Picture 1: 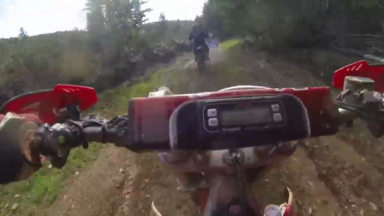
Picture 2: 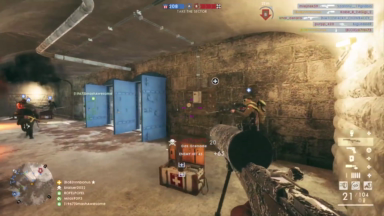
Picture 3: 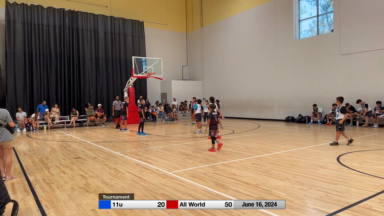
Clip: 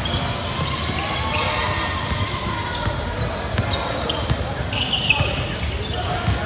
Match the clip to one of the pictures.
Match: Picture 3